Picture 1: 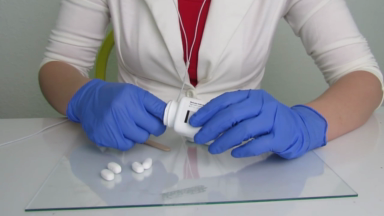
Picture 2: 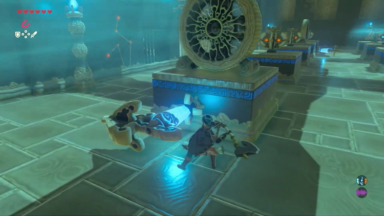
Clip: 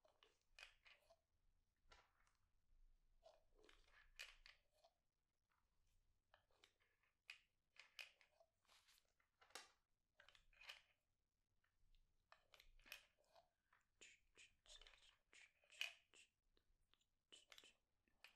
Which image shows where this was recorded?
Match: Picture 1